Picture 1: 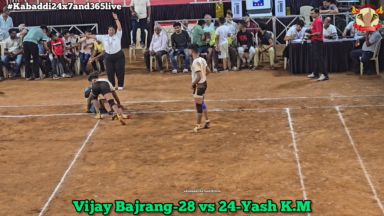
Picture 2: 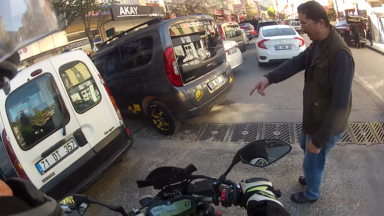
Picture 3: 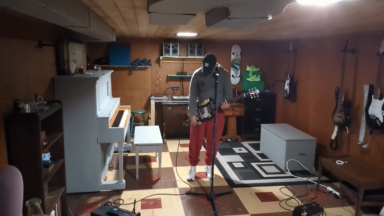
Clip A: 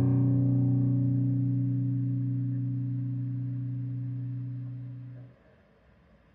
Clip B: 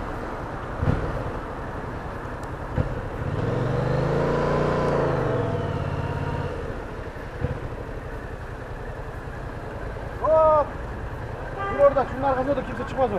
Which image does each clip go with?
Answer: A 3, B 2